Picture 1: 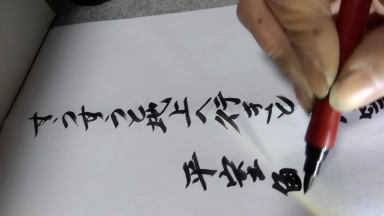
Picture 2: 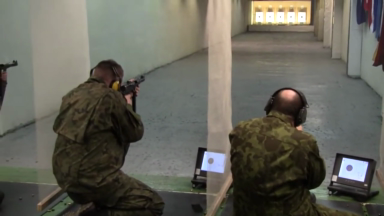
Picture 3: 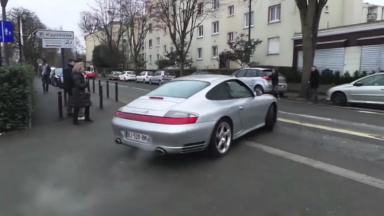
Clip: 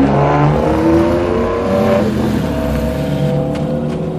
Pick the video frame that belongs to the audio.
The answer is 3